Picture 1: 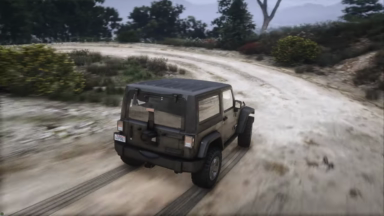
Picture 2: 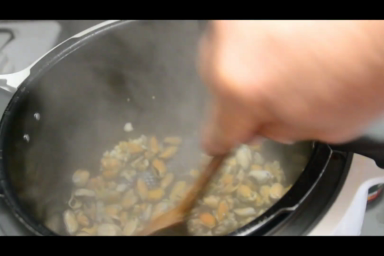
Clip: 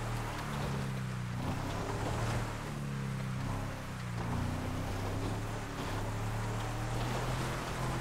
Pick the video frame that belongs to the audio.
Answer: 1